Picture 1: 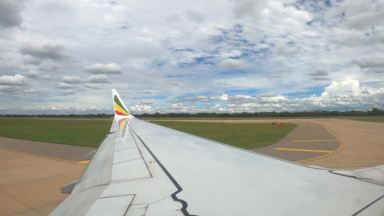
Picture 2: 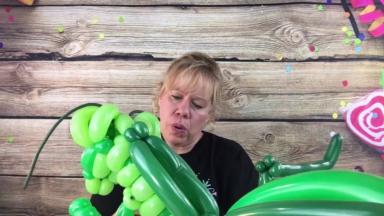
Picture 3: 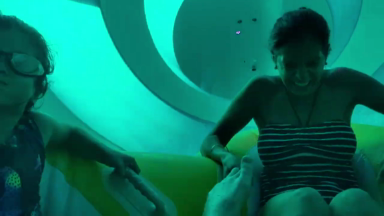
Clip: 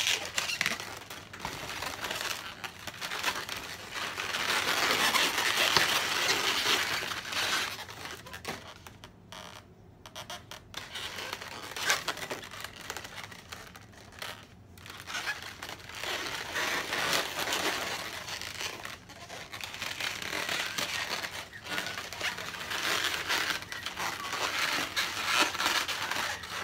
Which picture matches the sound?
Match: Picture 2